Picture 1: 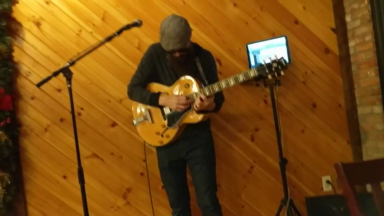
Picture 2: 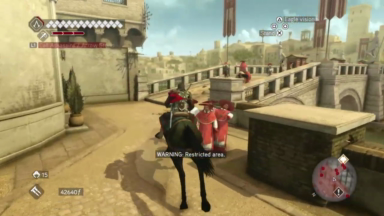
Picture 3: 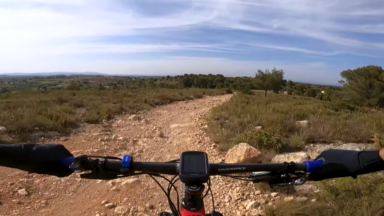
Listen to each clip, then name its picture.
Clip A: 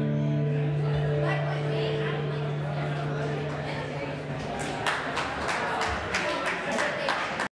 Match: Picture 1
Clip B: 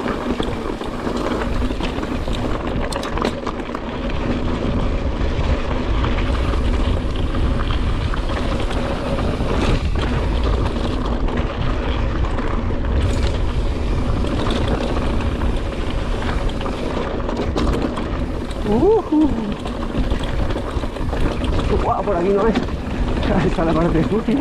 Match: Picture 3